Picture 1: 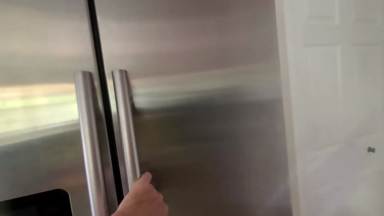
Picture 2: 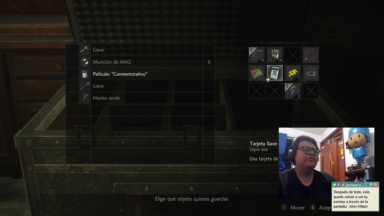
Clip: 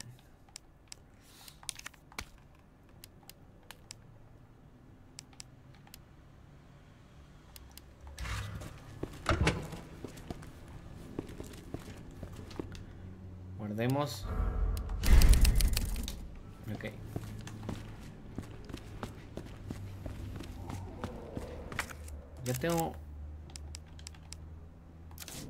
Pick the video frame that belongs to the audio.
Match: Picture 2